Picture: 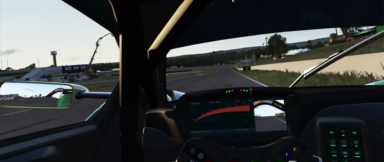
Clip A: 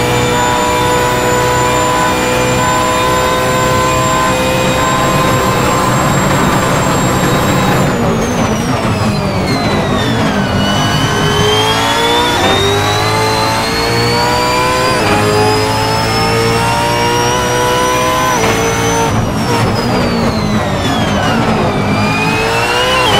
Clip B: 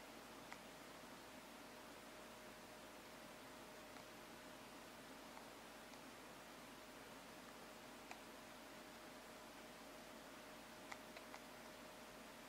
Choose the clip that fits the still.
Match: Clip A